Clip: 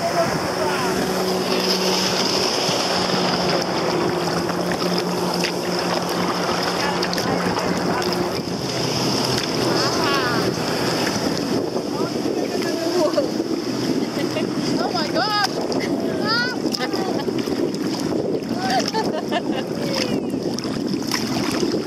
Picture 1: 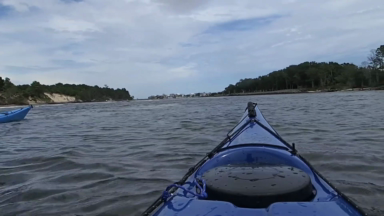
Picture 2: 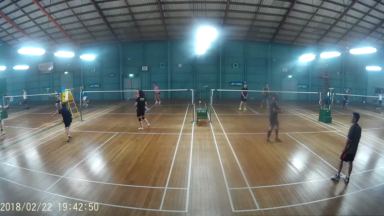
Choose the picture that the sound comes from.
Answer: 1